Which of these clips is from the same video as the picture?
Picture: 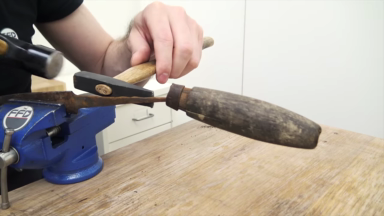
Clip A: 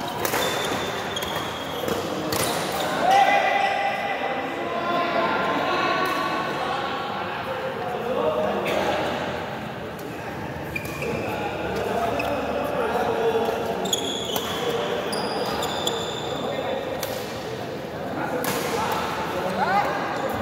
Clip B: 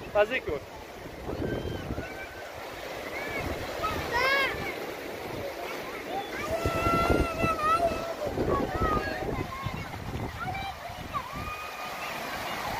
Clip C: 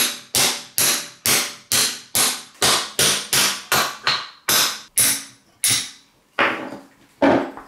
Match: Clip C